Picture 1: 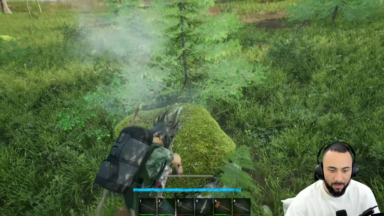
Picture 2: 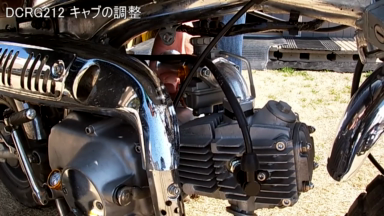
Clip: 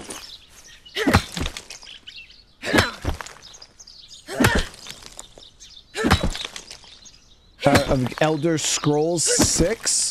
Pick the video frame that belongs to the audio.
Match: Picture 1